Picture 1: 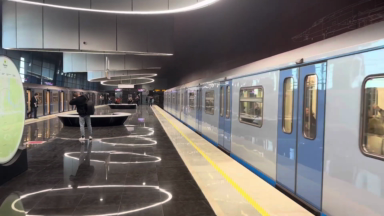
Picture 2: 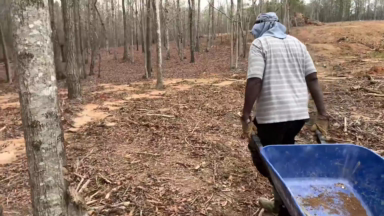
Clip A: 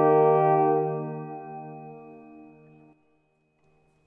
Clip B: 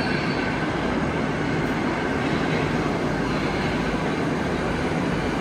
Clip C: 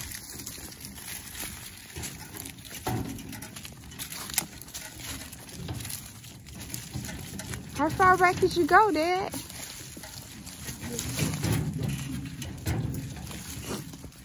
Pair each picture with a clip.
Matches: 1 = B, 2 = C